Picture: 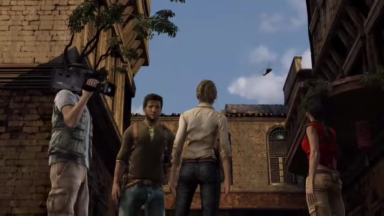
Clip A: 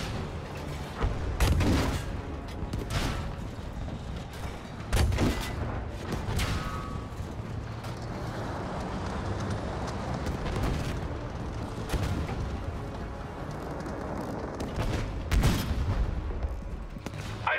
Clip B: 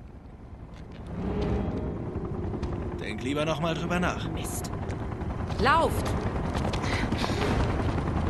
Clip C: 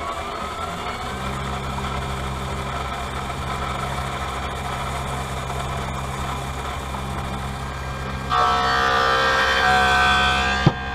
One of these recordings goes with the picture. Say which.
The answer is B